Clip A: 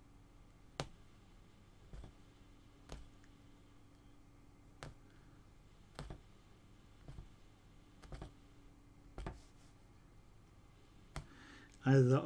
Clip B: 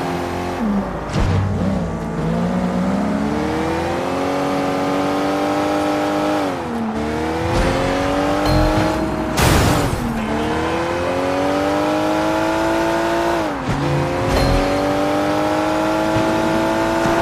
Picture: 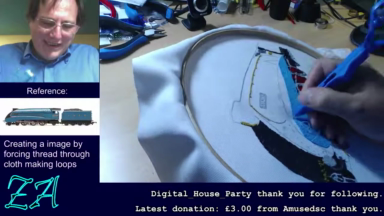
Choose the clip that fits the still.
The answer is A